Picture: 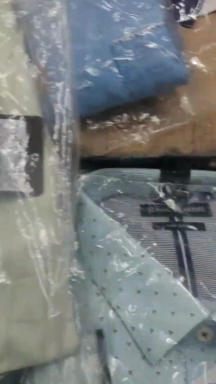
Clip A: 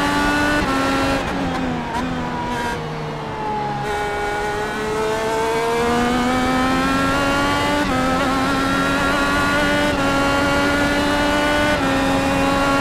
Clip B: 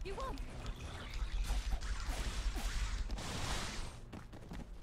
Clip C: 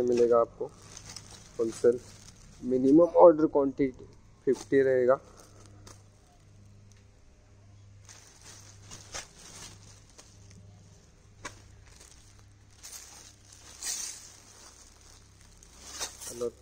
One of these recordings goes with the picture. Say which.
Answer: C